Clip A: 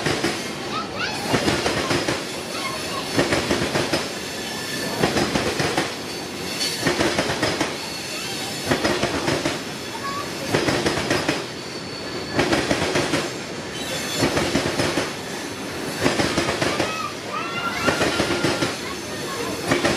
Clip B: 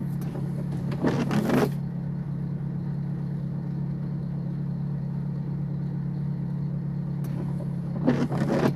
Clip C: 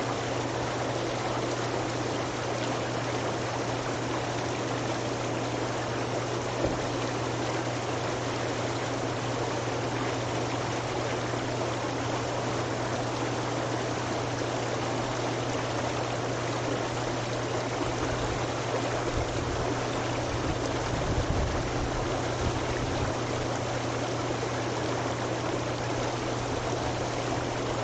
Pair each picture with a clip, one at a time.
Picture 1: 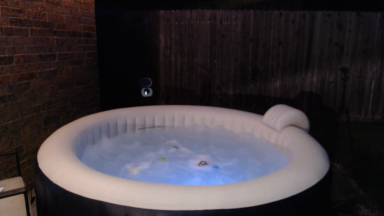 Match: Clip C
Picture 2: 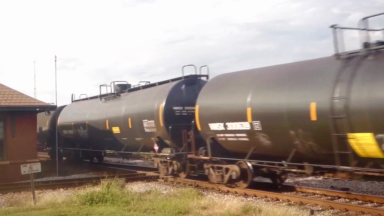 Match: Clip A